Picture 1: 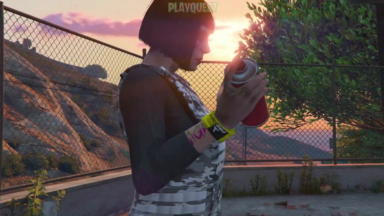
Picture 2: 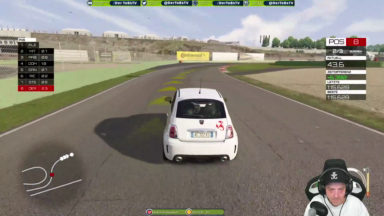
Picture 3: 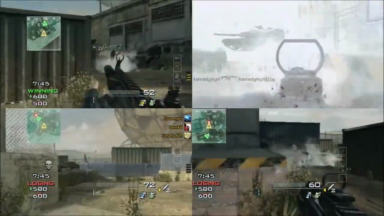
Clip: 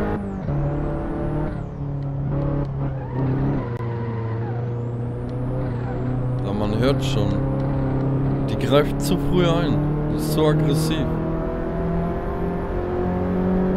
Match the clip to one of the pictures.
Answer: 2